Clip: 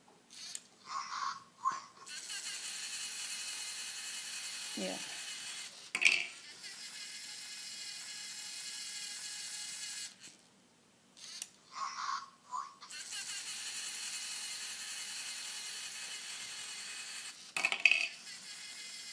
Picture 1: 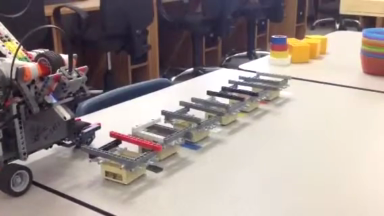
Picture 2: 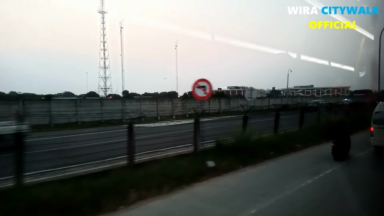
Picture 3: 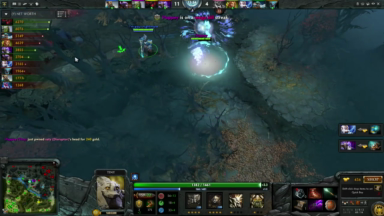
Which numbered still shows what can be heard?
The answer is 1